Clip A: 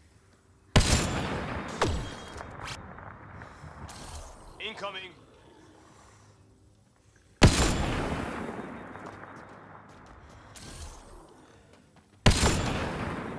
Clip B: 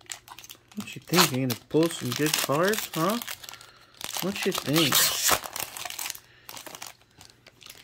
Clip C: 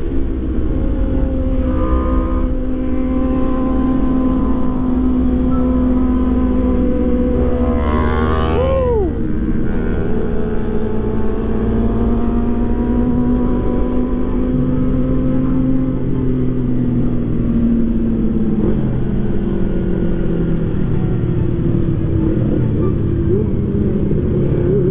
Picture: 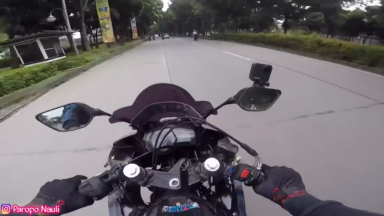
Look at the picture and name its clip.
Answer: C